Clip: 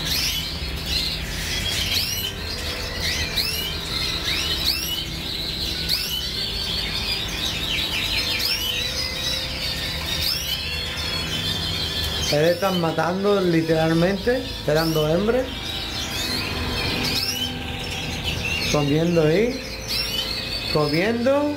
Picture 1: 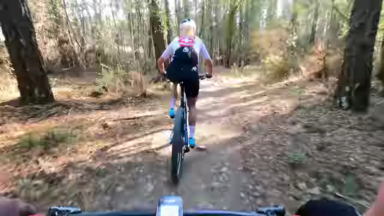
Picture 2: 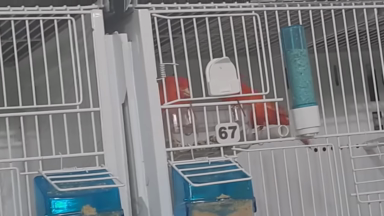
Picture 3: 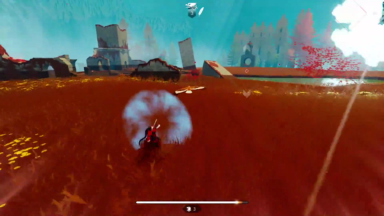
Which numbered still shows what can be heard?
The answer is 2